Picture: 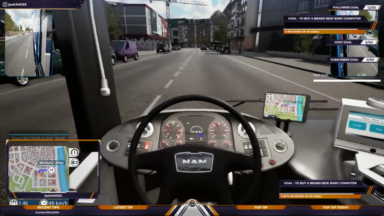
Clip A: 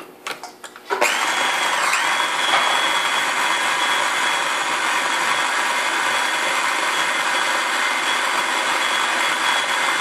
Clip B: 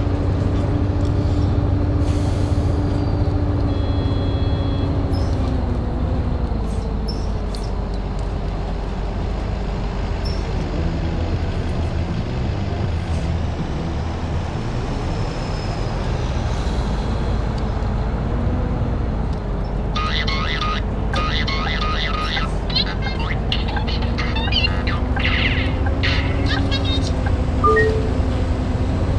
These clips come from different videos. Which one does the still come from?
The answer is B